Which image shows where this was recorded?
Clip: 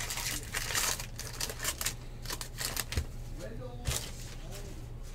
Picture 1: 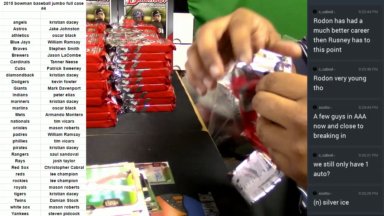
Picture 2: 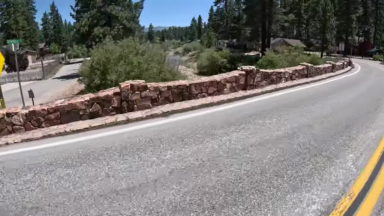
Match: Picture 1